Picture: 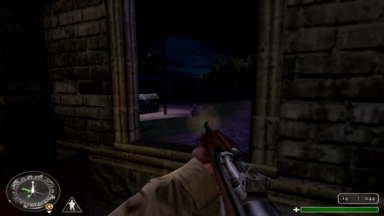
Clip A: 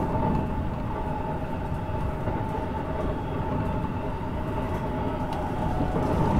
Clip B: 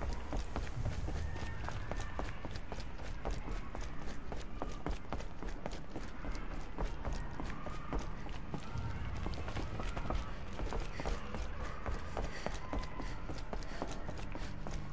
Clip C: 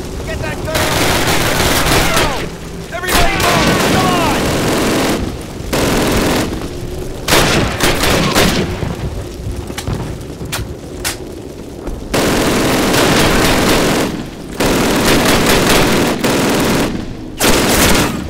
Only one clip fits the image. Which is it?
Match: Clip C